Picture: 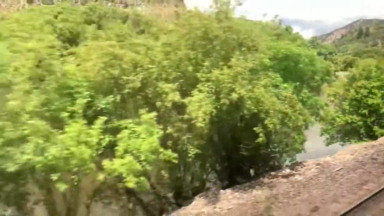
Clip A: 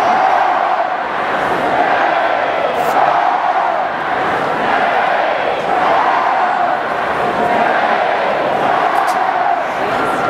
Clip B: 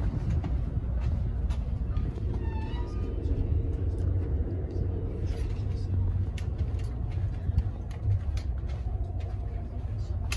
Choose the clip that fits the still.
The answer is B